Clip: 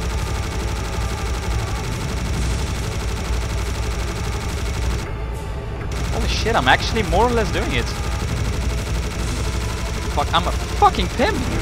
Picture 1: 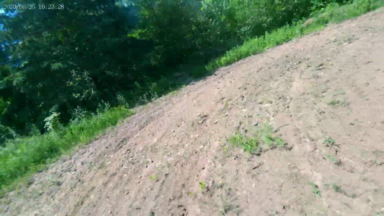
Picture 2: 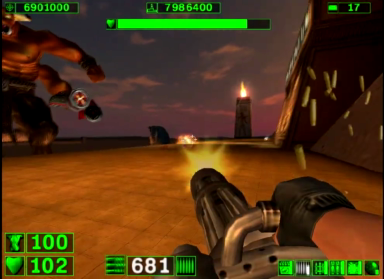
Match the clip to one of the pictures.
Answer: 2